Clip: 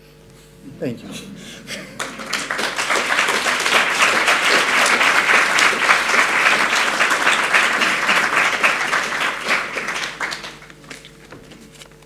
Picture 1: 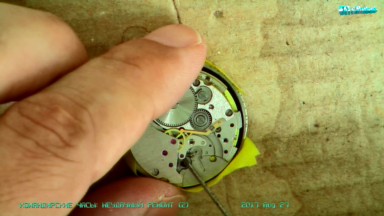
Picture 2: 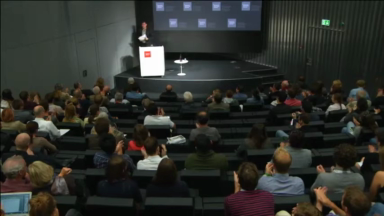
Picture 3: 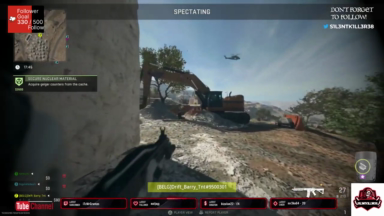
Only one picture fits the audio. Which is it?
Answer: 2